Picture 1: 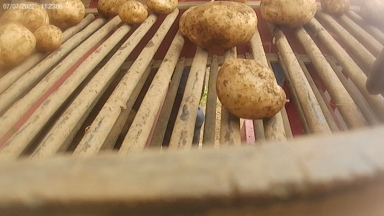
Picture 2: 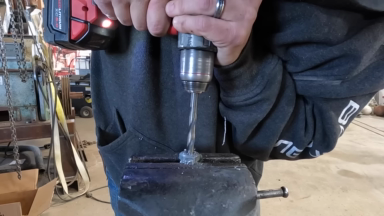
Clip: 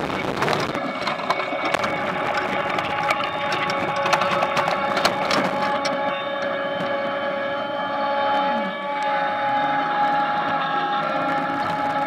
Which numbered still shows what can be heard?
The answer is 1